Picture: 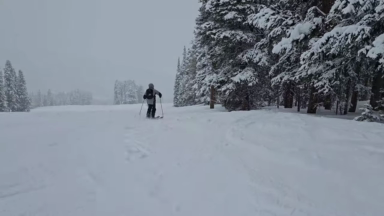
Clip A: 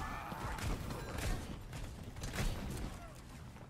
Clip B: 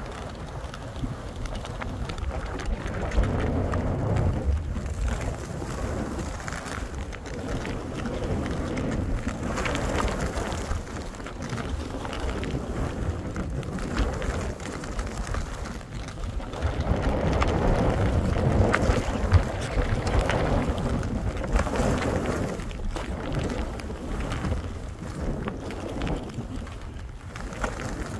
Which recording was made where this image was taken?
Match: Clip B